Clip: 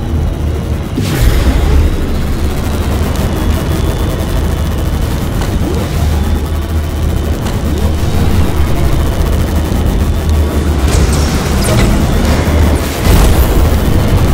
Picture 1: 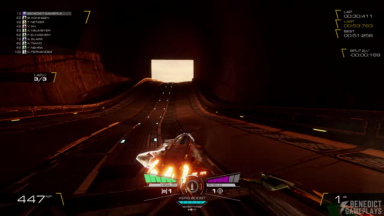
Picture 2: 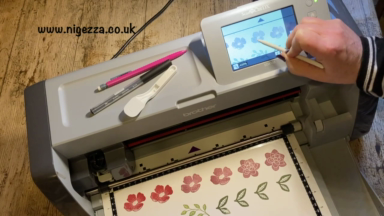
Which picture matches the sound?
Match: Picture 1